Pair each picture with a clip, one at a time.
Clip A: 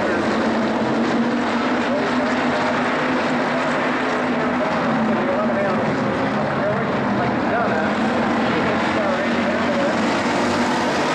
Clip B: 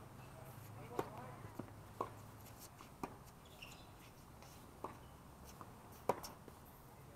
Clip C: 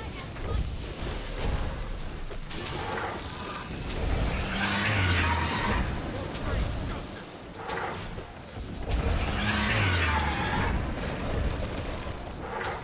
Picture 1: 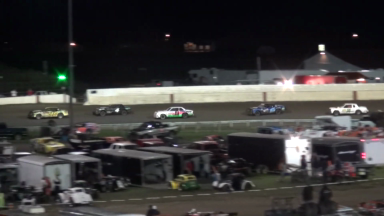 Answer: A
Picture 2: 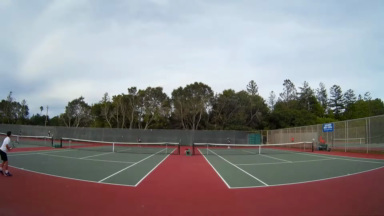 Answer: B